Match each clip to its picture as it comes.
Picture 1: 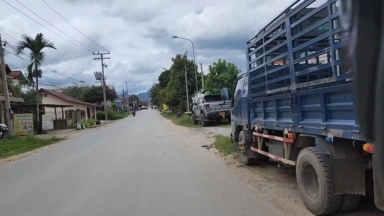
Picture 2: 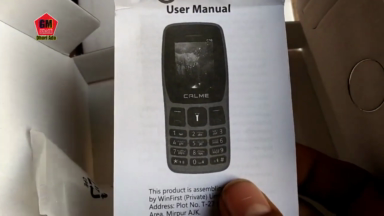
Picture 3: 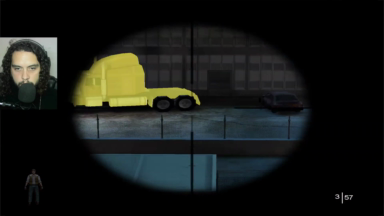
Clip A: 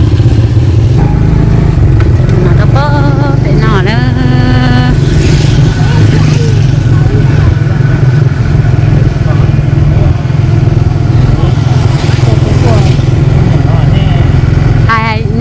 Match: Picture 1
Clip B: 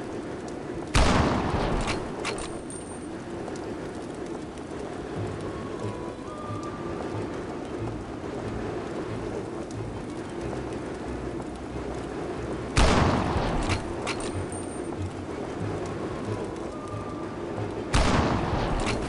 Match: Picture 3